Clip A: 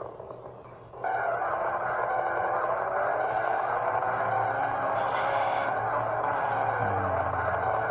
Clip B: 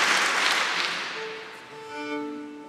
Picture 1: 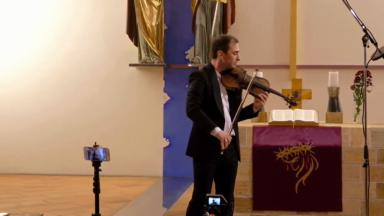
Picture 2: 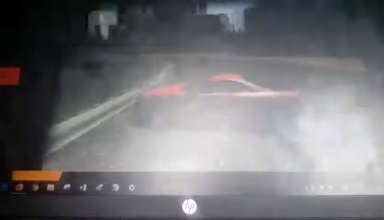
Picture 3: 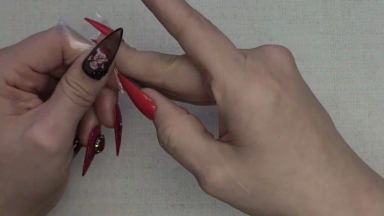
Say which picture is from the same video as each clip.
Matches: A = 2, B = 1